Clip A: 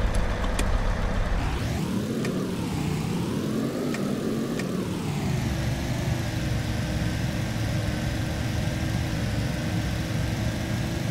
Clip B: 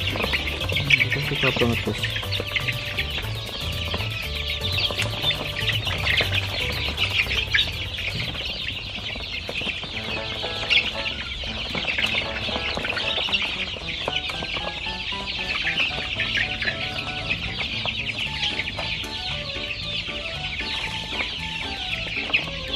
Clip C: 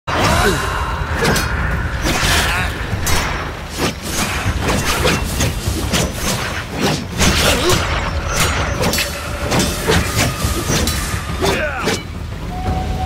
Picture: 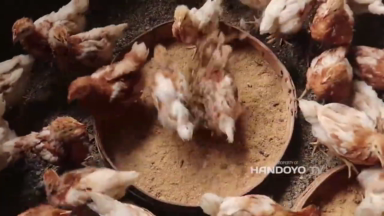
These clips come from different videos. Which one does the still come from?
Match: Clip B